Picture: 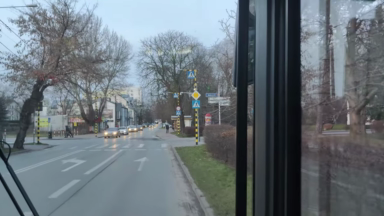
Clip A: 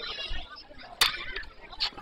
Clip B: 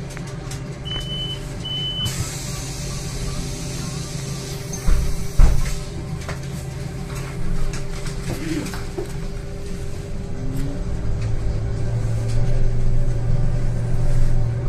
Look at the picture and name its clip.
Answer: B